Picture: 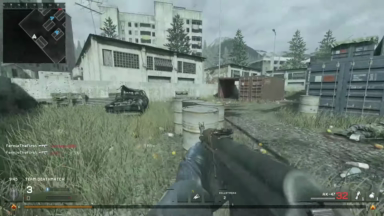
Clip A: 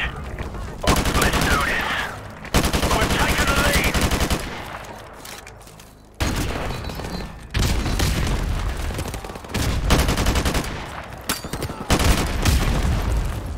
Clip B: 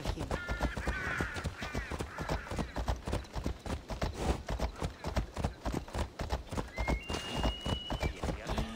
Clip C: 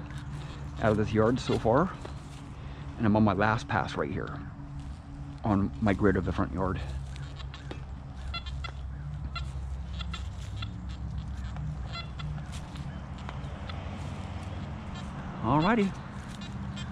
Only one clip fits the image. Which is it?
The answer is A